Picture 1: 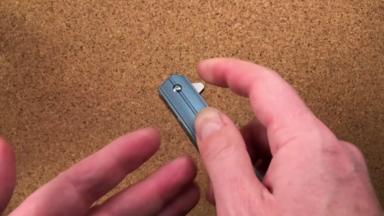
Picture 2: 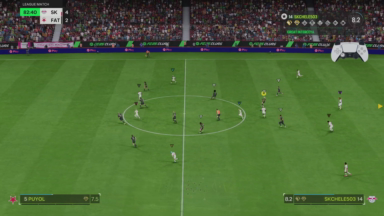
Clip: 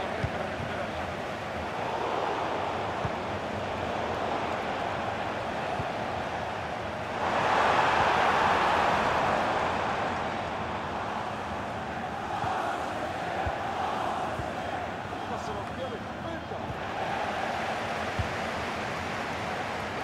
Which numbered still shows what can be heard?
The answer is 2